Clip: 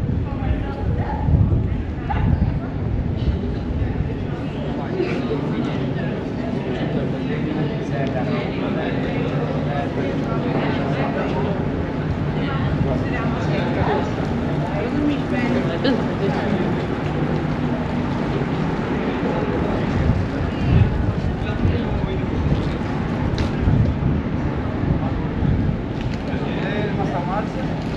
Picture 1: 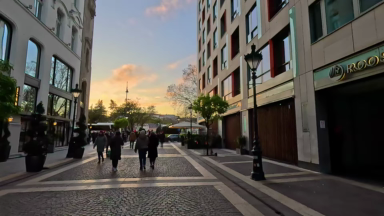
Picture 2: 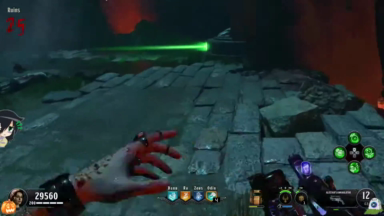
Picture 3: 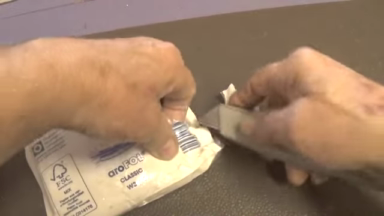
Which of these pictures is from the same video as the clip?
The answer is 1